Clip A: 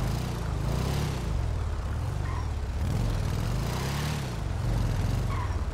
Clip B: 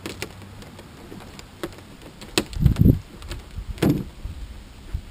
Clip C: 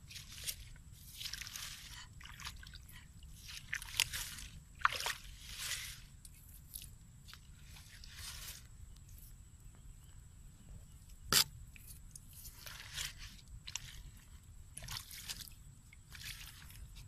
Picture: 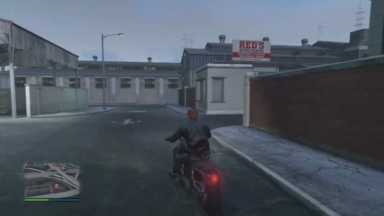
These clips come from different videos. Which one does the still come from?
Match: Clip A